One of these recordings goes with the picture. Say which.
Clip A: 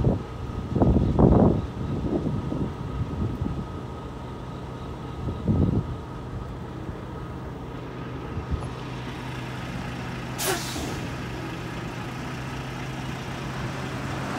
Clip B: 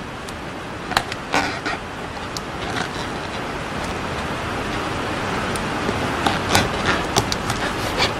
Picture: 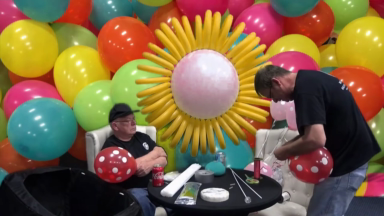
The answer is B